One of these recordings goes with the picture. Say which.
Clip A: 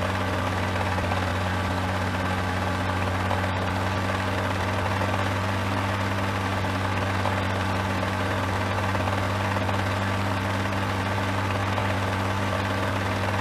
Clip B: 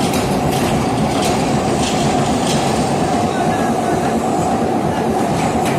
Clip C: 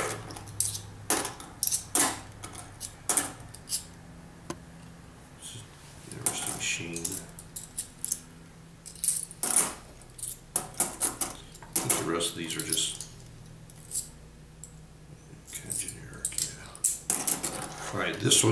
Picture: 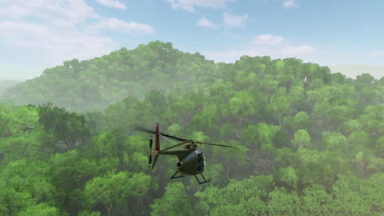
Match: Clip A